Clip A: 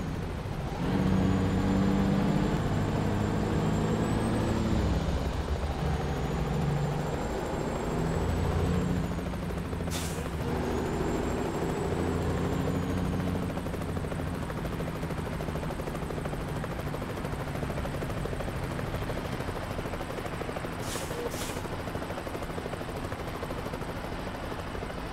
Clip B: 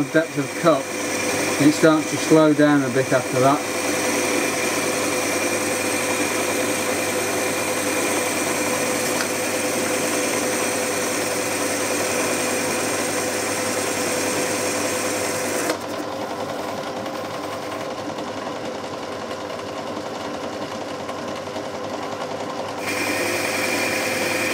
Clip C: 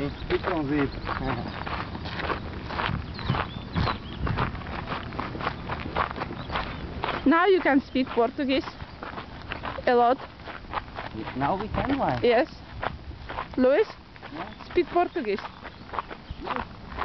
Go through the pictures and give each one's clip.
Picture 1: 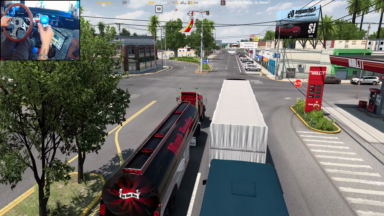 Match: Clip A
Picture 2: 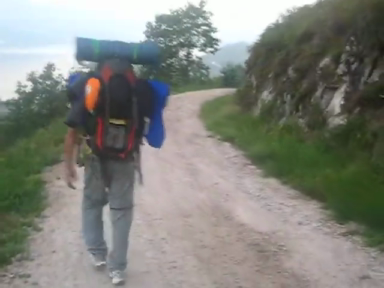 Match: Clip C